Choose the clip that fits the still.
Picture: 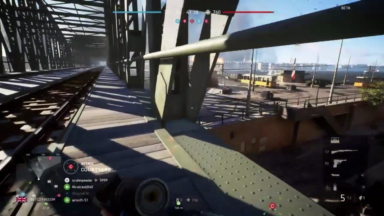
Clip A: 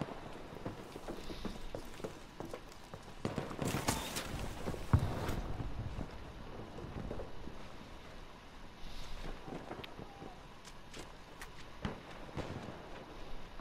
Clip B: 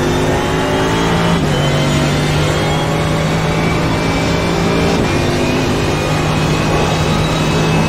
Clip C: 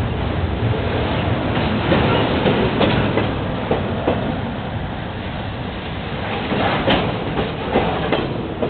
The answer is A